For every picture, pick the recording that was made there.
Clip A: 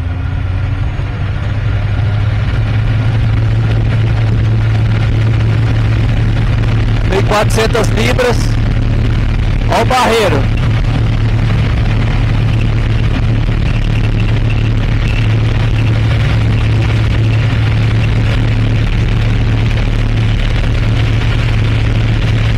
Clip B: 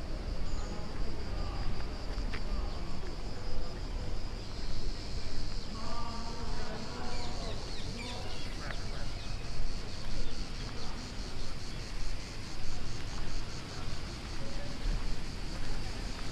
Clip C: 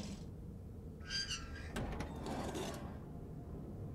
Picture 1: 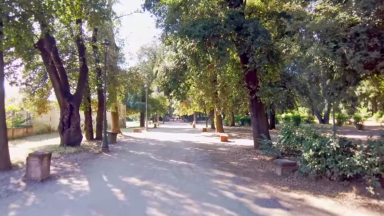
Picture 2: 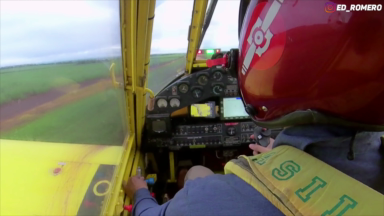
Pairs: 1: B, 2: A